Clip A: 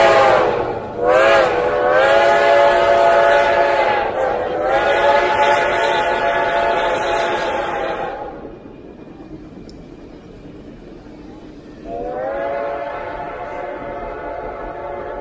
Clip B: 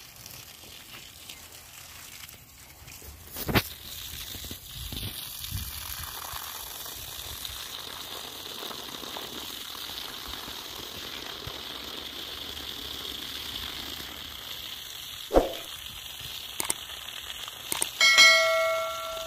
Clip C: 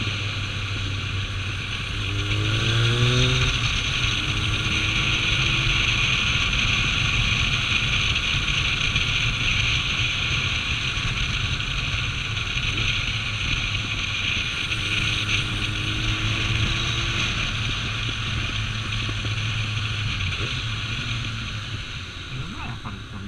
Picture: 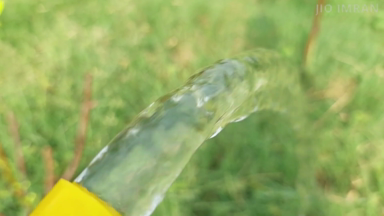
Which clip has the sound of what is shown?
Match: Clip B